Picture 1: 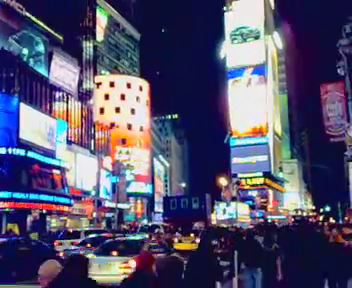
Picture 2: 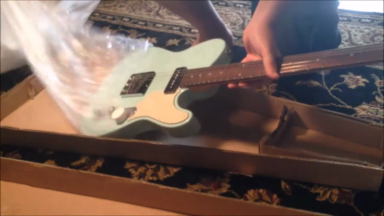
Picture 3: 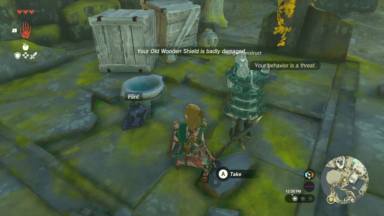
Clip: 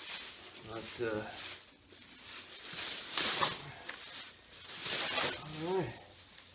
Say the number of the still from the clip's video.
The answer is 2